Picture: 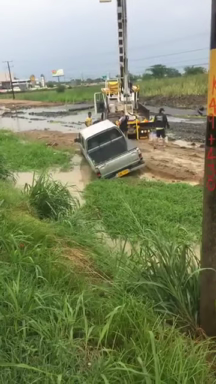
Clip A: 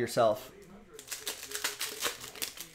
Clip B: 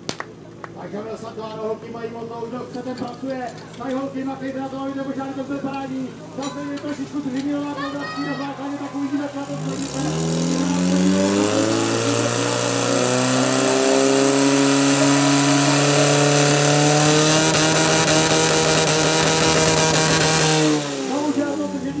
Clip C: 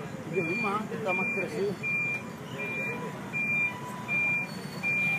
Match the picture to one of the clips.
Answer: C